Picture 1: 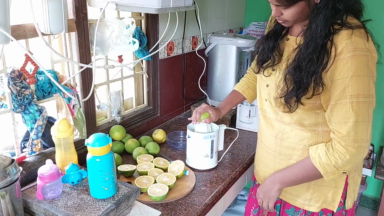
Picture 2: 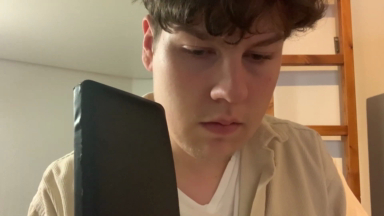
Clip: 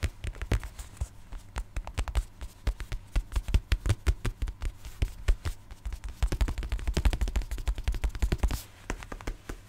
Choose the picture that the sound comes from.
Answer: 2